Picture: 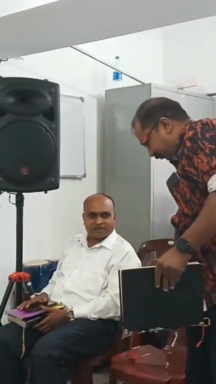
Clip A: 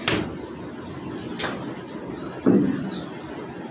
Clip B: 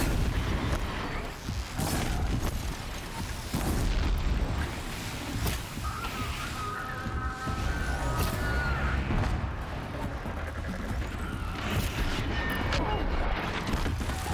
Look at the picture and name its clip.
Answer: A